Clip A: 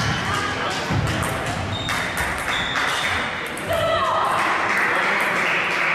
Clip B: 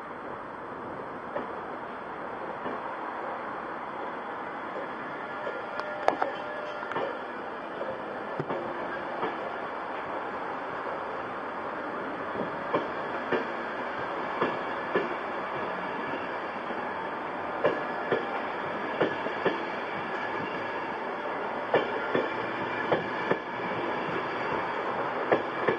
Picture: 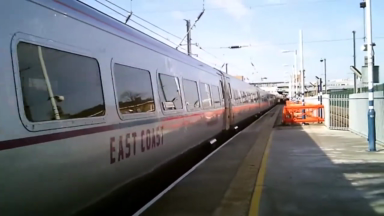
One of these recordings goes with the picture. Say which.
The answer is B